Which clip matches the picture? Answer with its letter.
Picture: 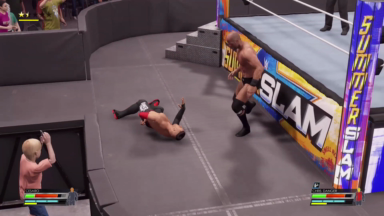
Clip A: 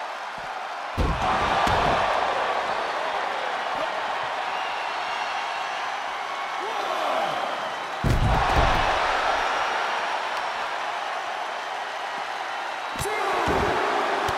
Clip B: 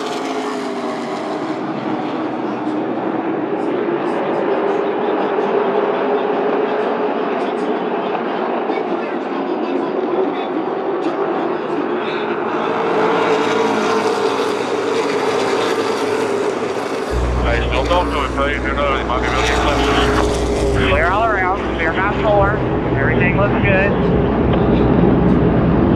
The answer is A